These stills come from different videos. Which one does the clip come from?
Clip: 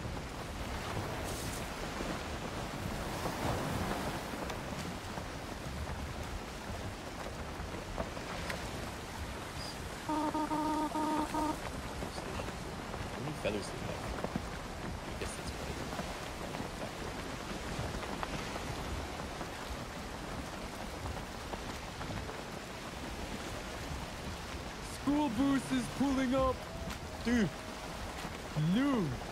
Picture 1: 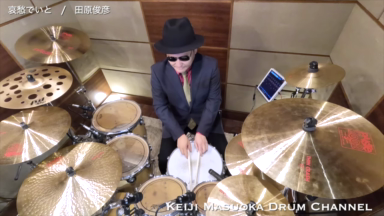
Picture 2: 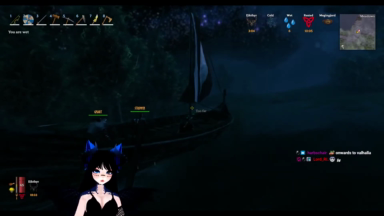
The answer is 2